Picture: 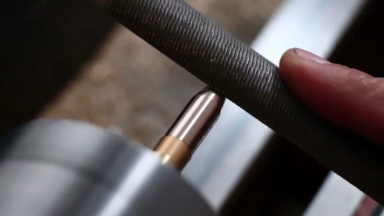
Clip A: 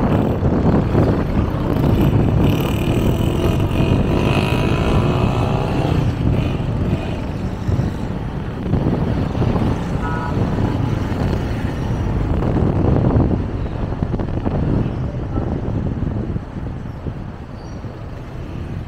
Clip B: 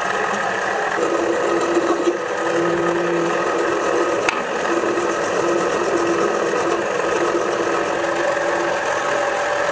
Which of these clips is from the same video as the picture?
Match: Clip B